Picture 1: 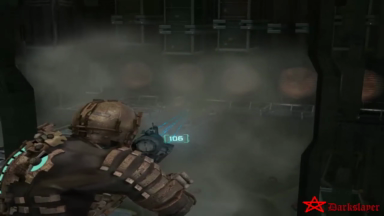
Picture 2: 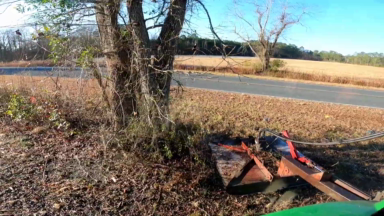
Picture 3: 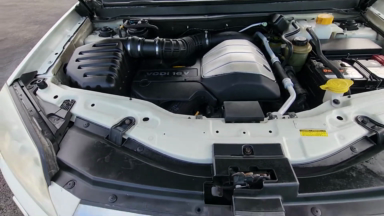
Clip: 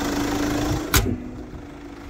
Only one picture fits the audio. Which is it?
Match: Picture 3